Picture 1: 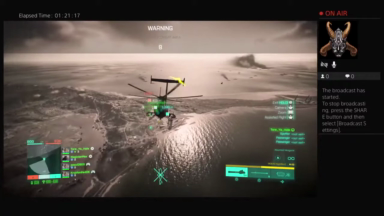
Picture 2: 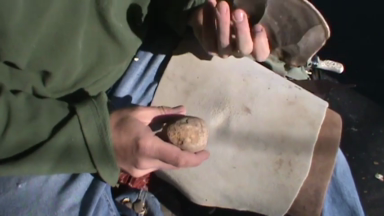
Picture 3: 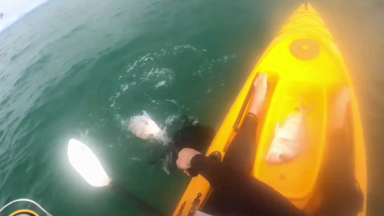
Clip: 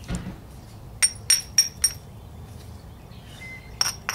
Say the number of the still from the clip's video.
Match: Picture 2